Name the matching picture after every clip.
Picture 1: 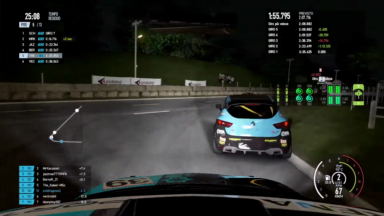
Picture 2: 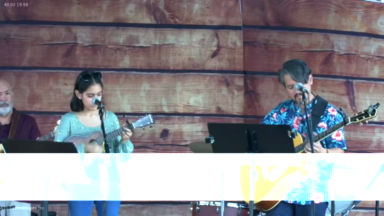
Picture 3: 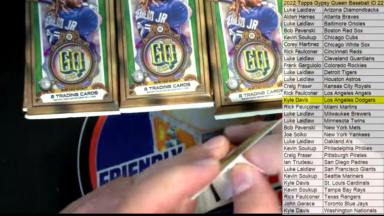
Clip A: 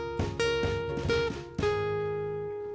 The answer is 2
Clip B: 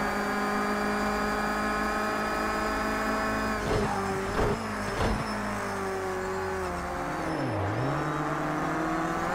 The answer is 1